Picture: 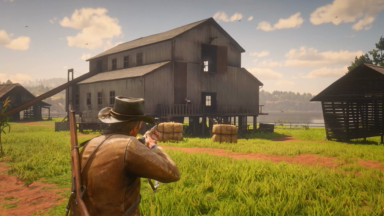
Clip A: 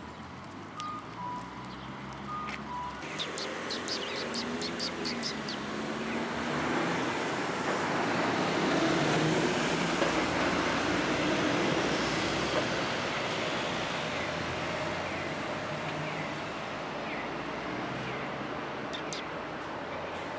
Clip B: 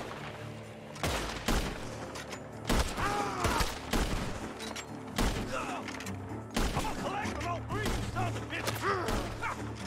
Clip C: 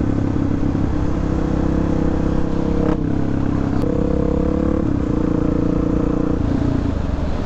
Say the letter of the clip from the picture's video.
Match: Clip B